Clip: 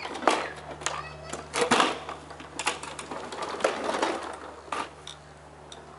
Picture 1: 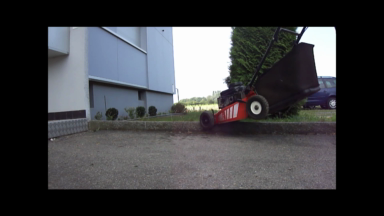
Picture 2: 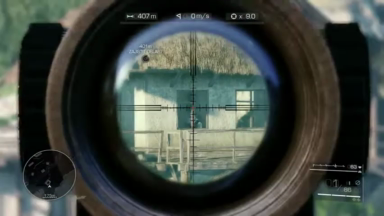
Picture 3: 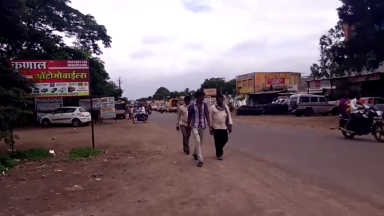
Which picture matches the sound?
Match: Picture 1